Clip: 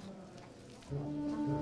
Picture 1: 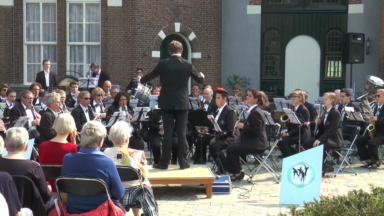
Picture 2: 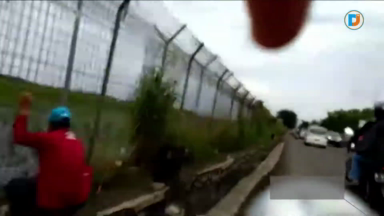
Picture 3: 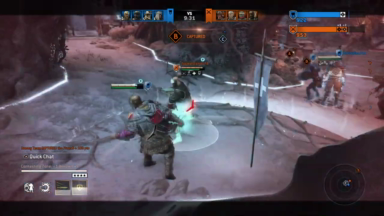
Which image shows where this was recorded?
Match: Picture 1